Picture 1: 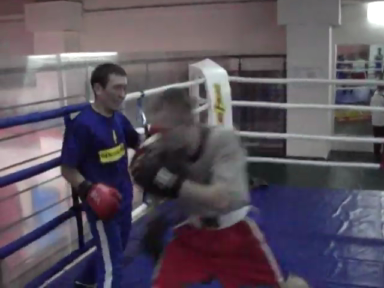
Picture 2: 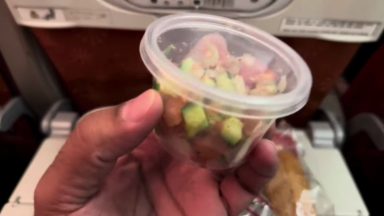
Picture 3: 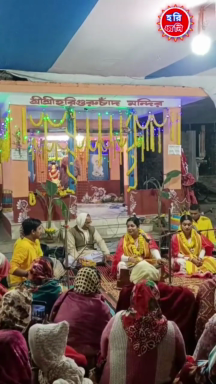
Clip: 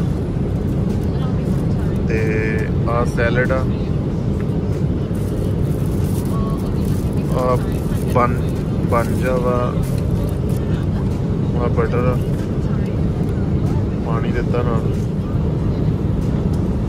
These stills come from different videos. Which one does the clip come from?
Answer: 2